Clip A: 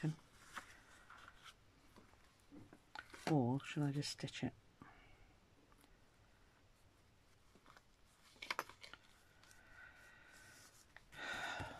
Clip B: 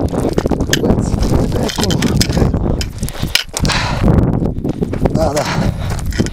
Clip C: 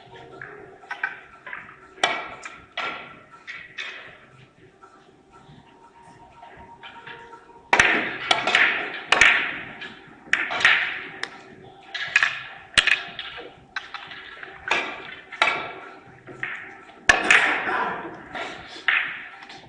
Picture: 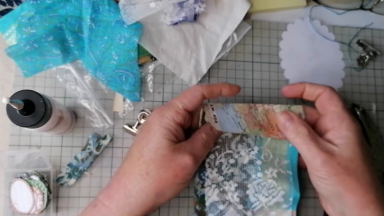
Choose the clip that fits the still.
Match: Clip A